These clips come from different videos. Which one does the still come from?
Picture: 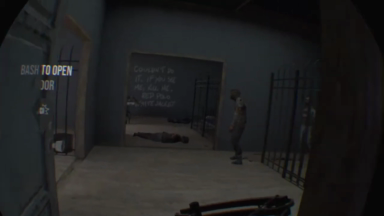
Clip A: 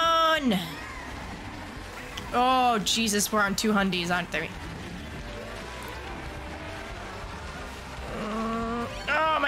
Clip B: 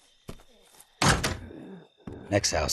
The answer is B